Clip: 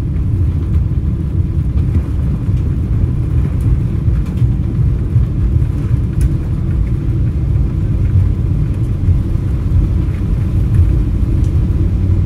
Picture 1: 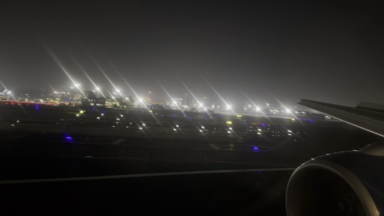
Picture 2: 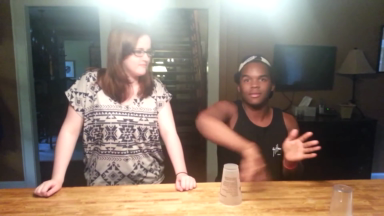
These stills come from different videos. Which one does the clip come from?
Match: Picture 1